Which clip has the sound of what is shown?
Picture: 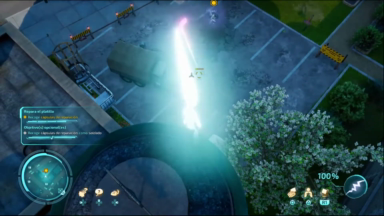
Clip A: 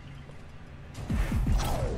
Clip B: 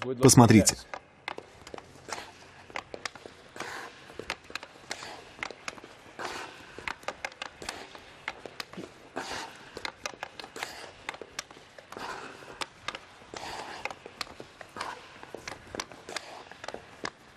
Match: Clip A